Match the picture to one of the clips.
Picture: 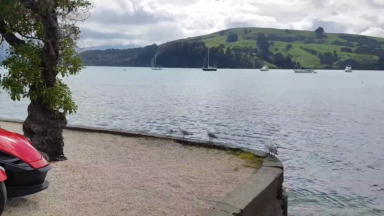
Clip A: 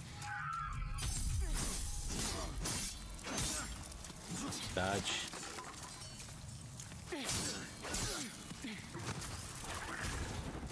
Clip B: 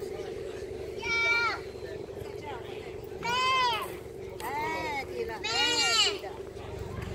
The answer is B